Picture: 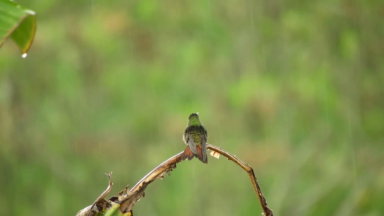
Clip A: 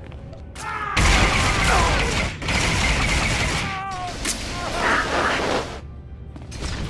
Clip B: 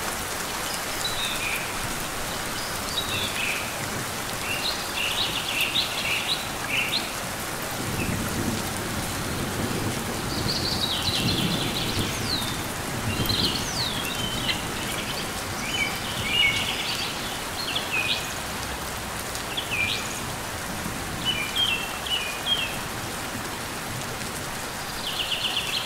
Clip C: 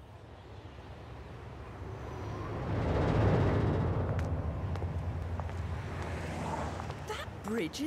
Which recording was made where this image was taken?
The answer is B